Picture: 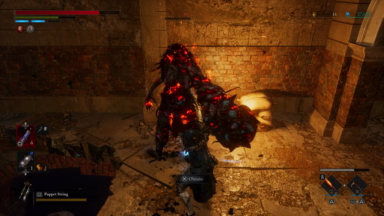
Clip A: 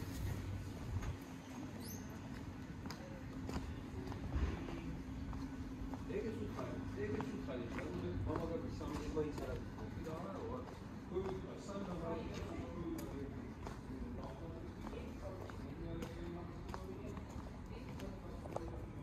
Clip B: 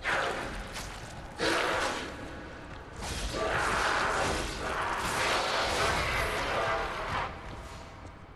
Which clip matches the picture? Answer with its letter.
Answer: B